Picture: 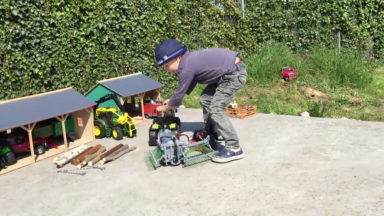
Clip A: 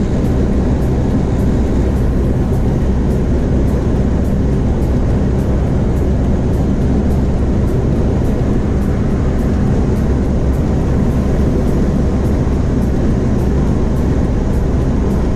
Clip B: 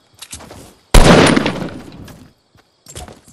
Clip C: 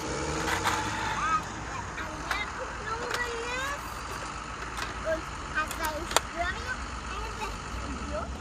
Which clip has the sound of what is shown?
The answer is C